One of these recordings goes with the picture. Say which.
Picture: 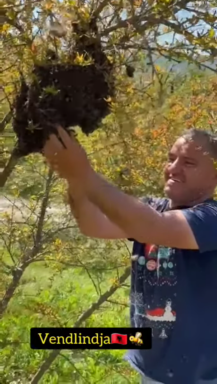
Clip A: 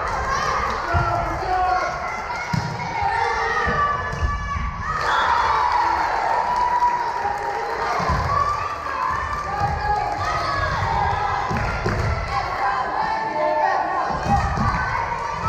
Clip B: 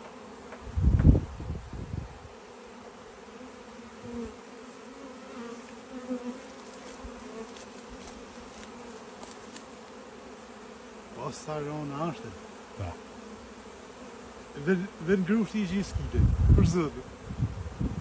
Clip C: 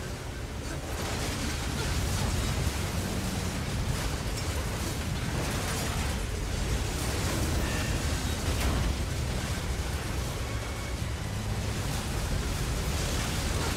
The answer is B